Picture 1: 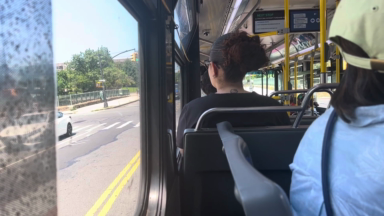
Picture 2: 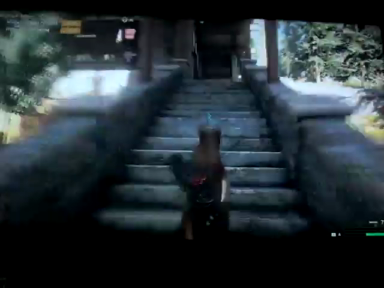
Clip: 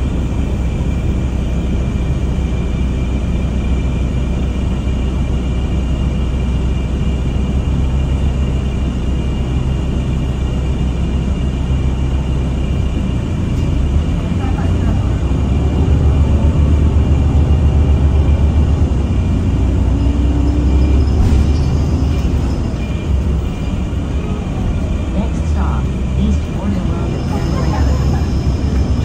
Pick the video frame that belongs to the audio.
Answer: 1